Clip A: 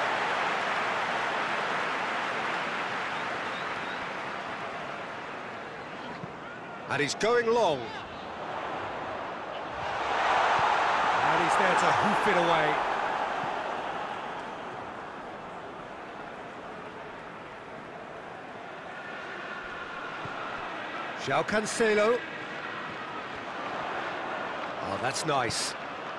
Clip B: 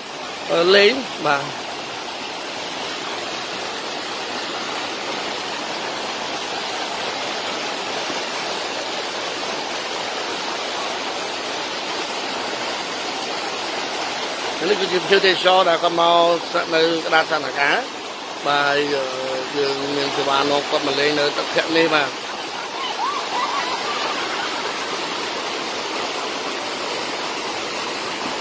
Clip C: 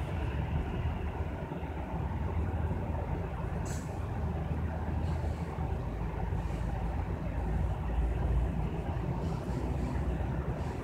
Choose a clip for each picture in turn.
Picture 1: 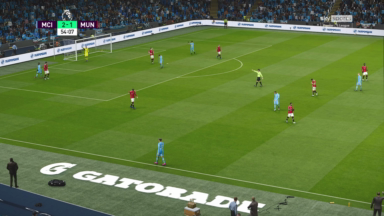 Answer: A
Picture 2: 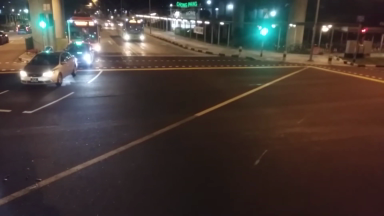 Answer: C